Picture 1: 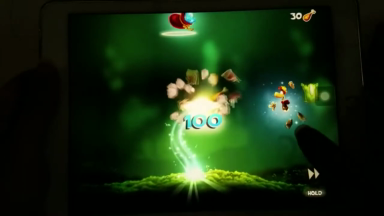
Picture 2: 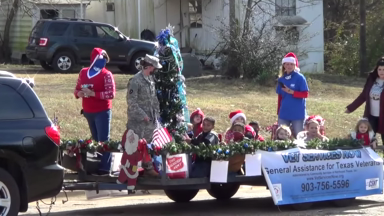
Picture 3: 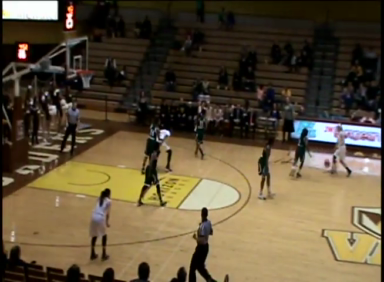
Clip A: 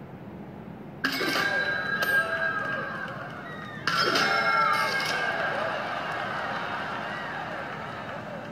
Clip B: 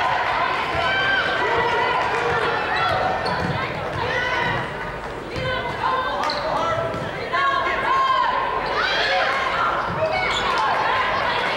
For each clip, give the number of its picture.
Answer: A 1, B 3